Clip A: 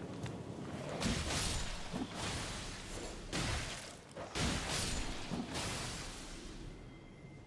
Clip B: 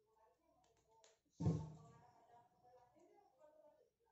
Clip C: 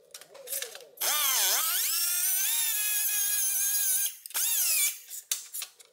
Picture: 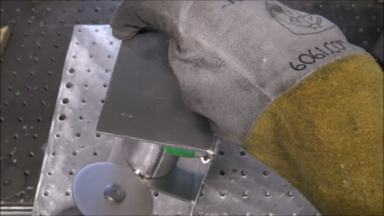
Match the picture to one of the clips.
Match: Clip C